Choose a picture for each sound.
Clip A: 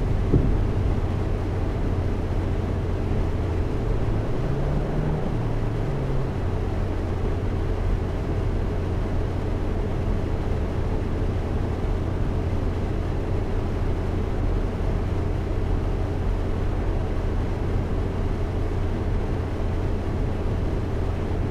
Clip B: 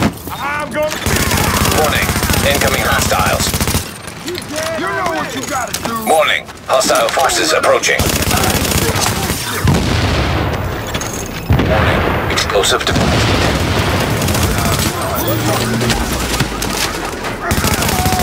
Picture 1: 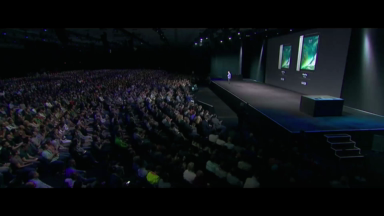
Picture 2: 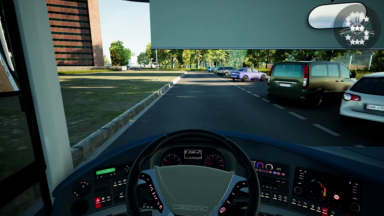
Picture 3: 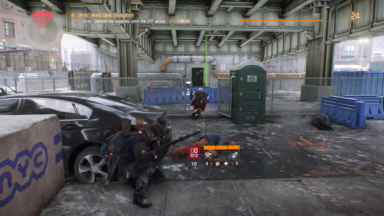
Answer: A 2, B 3